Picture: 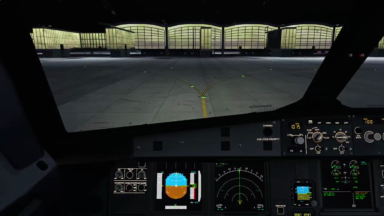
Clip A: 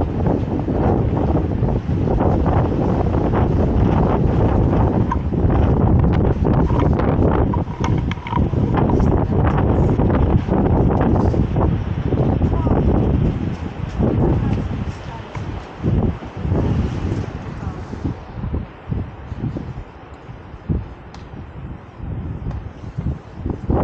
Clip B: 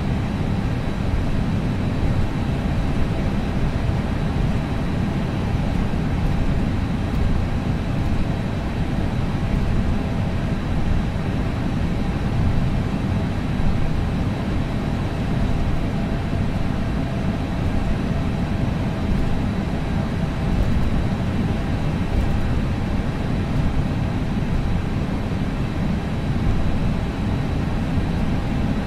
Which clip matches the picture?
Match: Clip B